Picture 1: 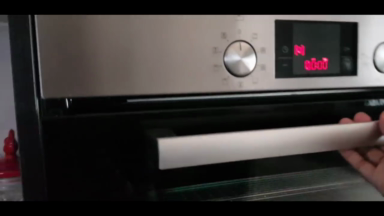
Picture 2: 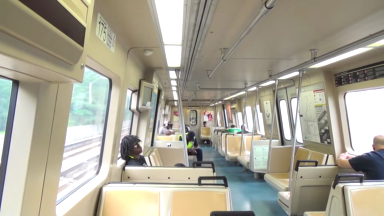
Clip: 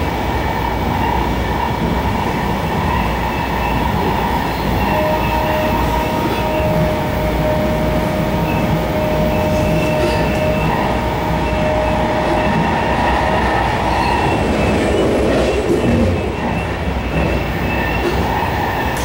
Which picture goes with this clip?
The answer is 2